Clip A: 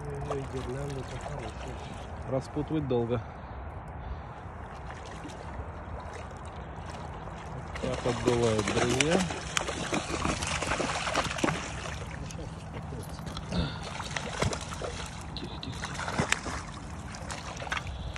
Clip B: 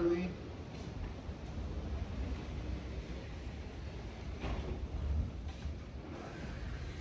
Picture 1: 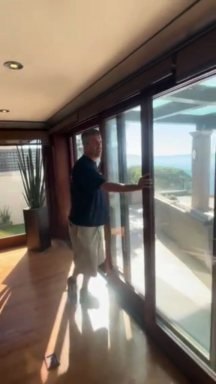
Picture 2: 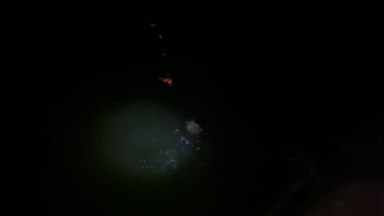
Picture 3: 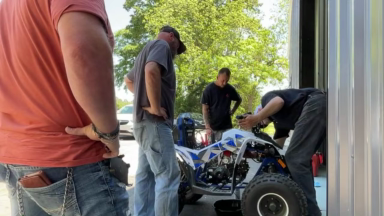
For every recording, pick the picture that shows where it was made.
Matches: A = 2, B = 1